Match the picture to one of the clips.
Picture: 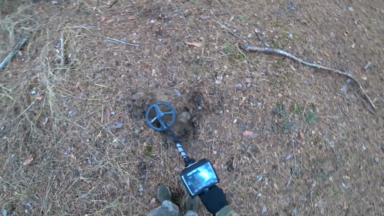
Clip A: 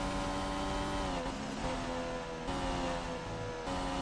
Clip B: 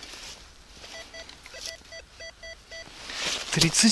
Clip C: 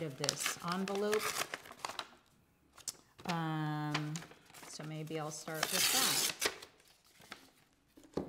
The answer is B